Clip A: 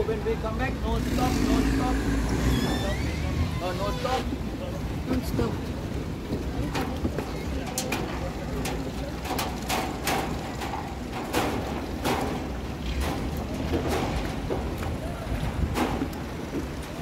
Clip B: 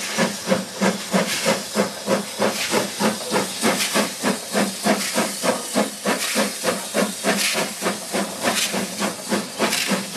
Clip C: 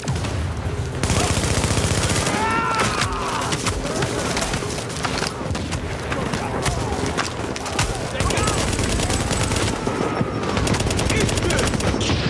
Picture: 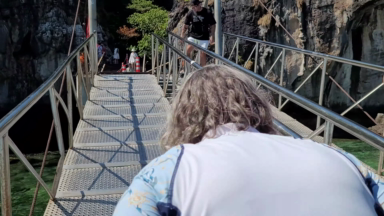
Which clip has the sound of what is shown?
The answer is A